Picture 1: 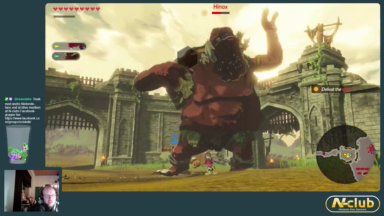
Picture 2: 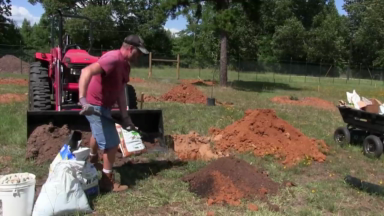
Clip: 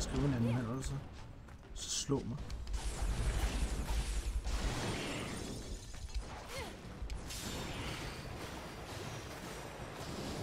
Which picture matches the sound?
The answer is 1